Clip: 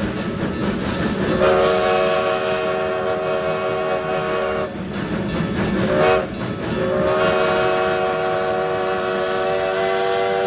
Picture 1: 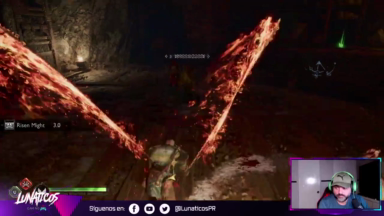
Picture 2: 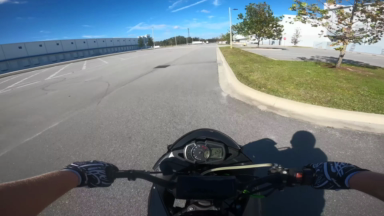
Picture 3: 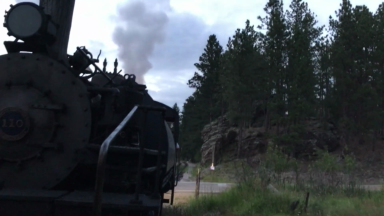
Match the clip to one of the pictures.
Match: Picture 3